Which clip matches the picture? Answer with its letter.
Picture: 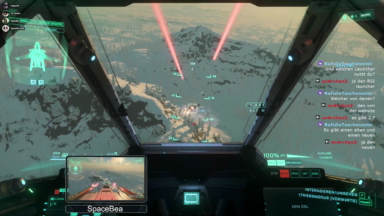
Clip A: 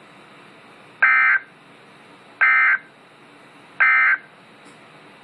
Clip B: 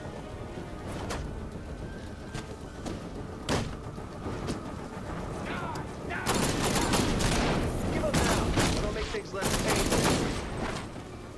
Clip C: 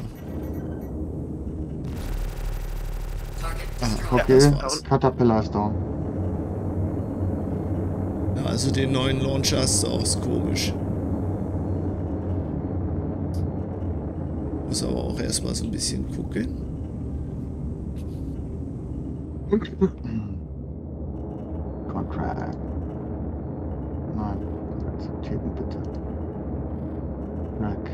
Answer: C